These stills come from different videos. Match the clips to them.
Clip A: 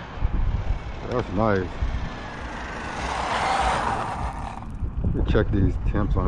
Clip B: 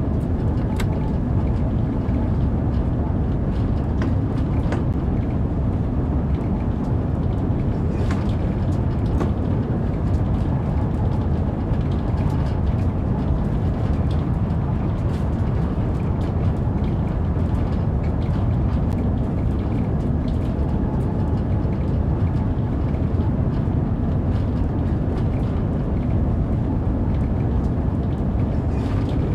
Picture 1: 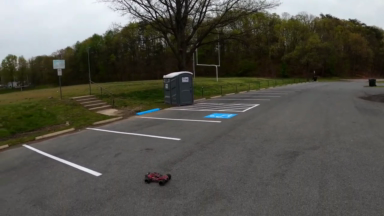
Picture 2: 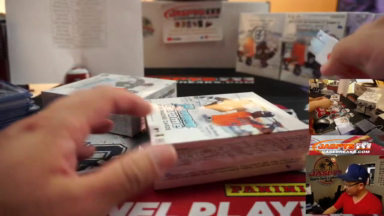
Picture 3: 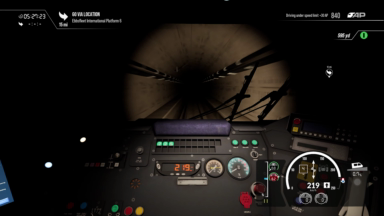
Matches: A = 1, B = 3